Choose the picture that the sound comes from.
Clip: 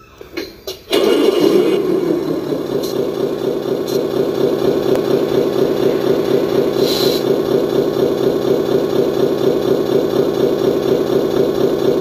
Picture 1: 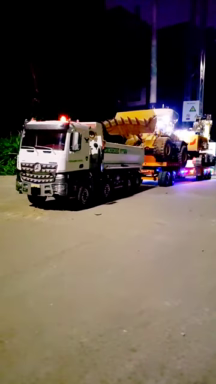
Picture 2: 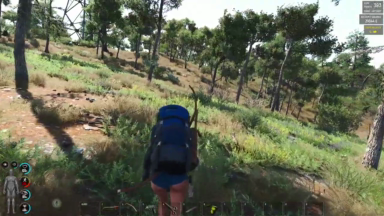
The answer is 1